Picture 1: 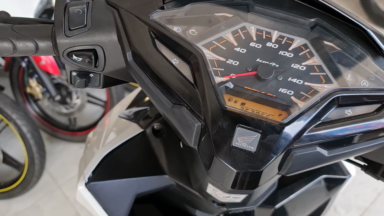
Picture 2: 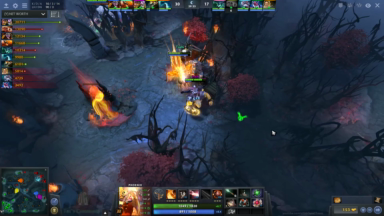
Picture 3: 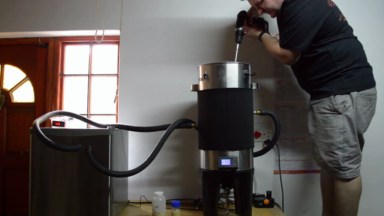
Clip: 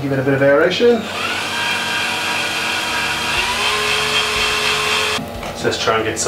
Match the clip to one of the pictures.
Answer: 3